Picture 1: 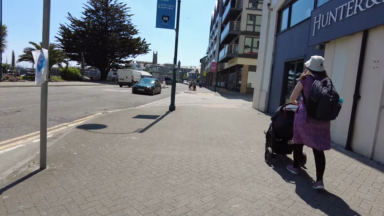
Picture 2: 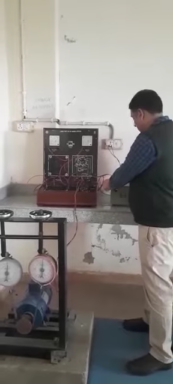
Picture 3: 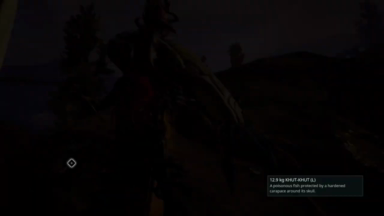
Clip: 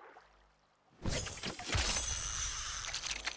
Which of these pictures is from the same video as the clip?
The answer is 3